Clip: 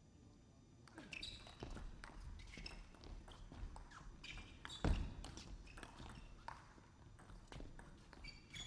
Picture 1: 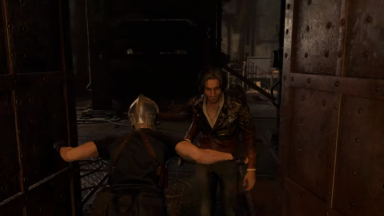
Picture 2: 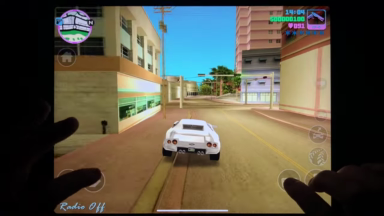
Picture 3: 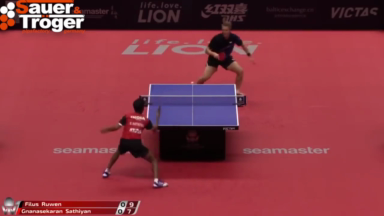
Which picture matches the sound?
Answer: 3